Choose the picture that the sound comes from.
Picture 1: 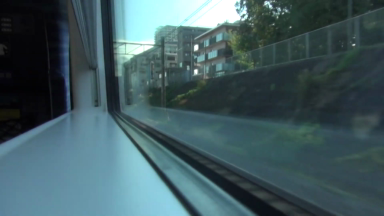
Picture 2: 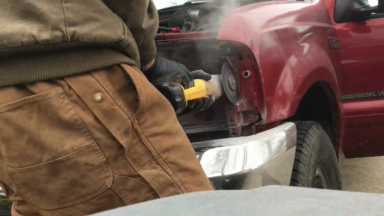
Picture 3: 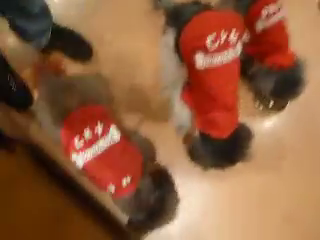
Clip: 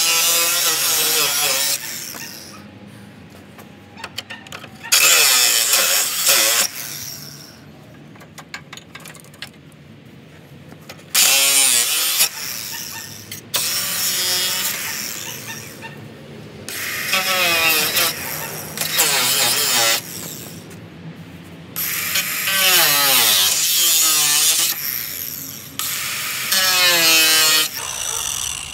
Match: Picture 2